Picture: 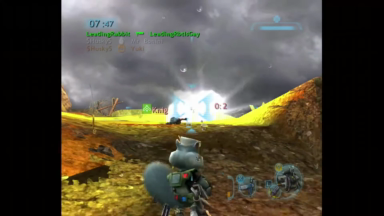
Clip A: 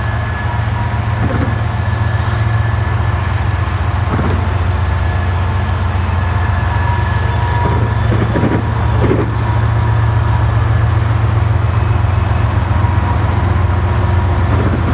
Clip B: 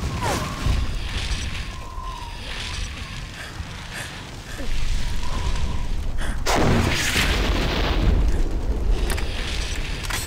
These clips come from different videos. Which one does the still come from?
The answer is B